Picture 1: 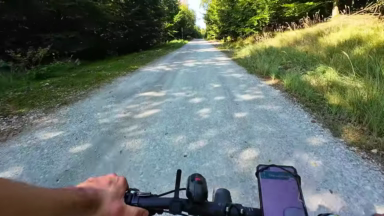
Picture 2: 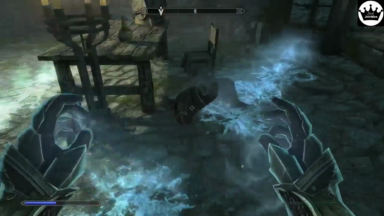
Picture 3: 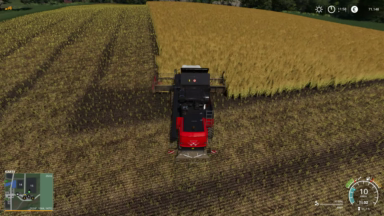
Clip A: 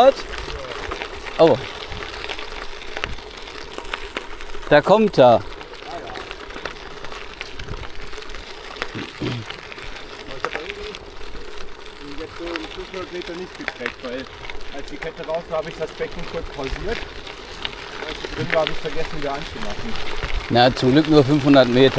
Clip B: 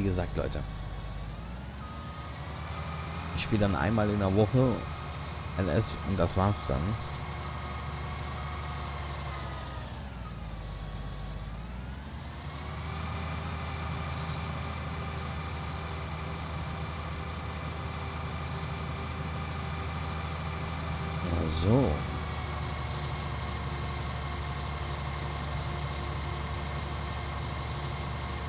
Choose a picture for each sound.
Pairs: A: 1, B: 3